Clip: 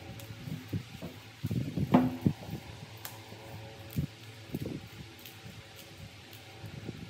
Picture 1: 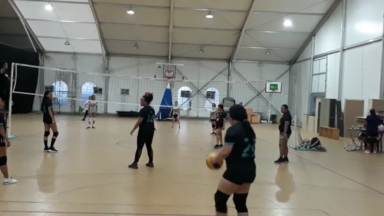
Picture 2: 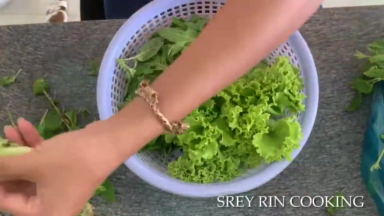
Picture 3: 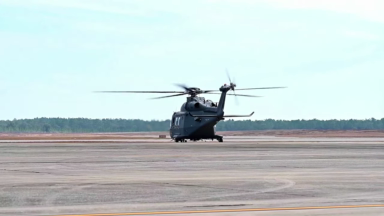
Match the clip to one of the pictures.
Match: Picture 2